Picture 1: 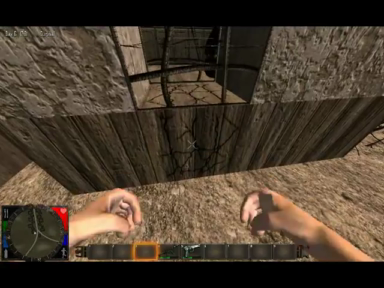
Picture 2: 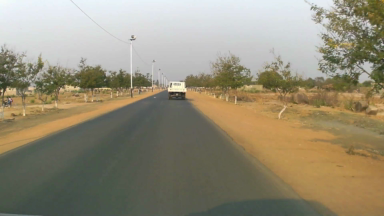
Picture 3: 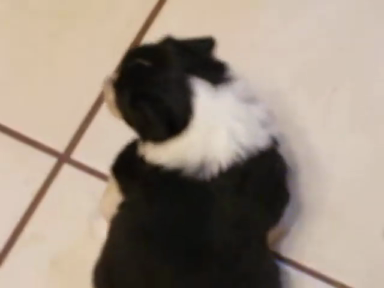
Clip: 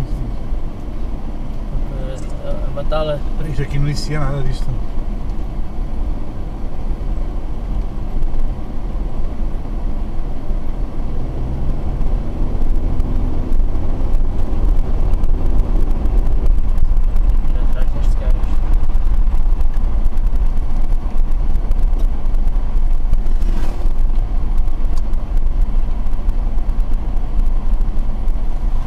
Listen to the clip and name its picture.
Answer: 2